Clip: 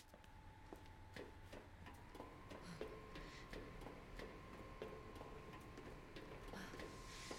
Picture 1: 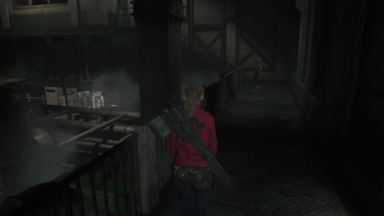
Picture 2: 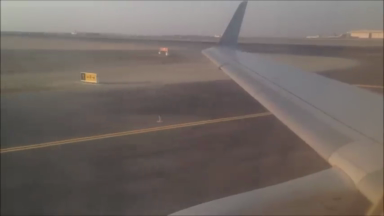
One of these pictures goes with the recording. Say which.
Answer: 1